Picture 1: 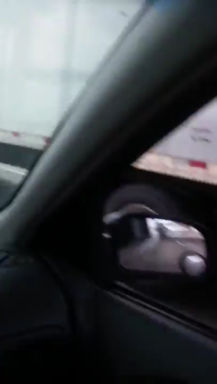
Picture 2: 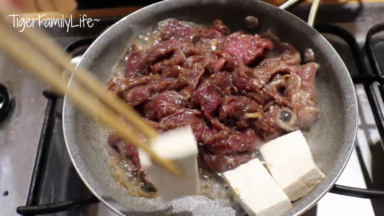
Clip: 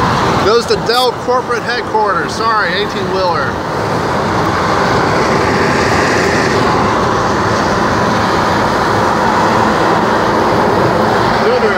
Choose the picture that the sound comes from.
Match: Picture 1